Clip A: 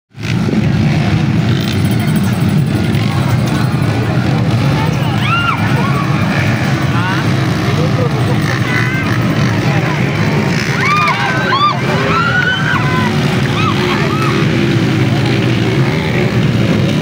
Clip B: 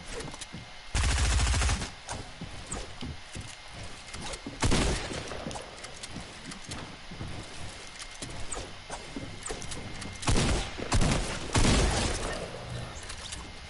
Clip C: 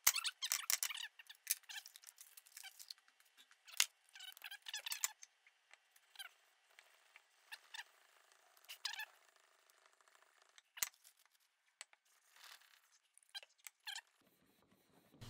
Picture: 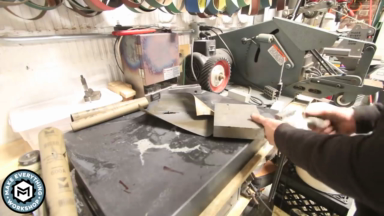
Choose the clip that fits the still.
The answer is C